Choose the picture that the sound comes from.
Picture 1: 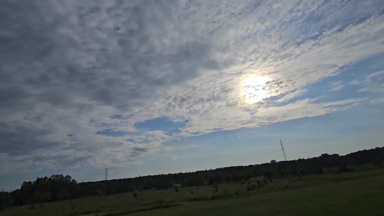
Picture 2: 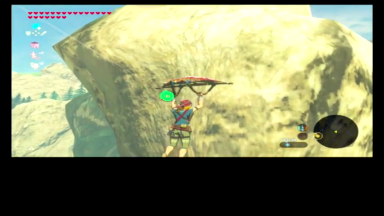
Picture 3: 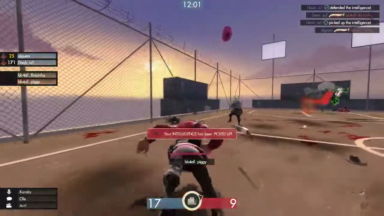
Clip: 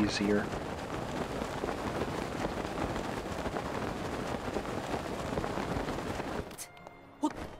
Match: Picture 2